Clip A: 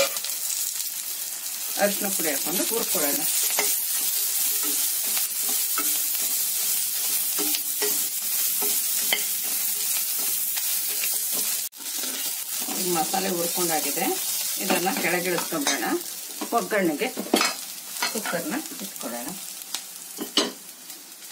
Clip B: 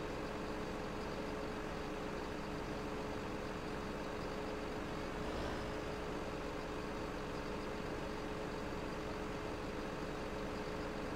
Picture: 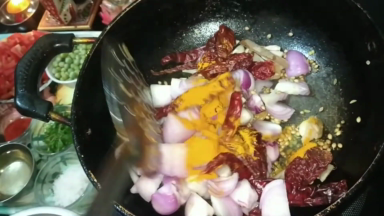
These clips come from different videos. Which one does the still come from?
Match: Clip A